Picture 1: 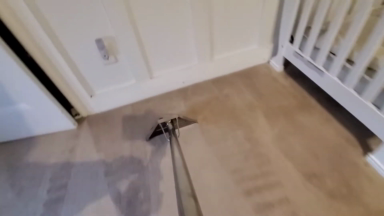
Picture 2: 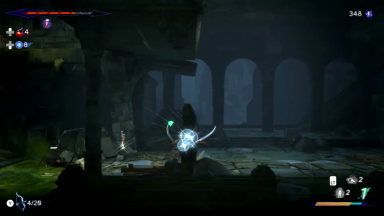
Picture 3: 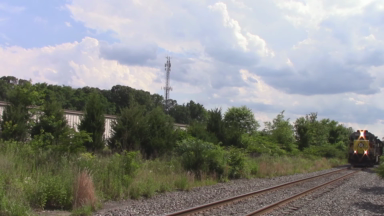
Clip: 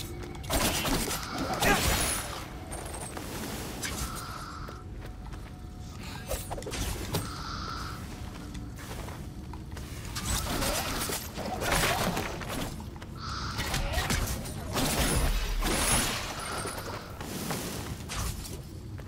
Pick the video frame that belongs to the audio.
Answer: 2